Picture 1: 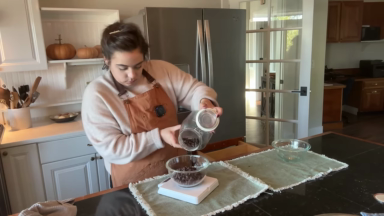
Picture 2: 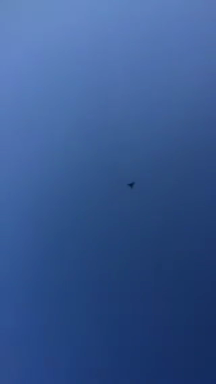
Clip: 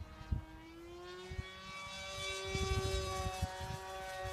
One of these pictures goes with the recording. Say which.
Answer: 2